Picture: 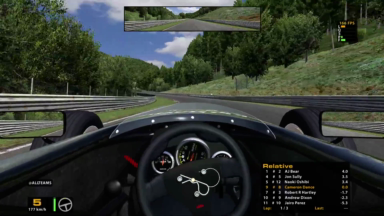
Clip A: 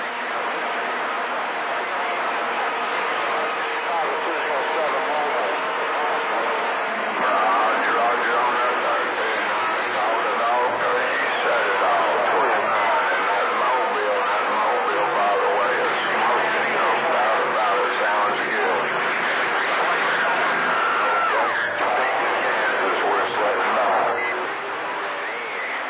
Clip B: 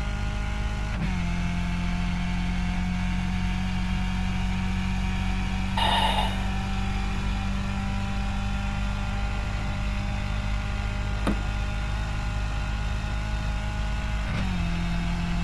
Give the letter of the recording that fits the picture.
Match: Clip B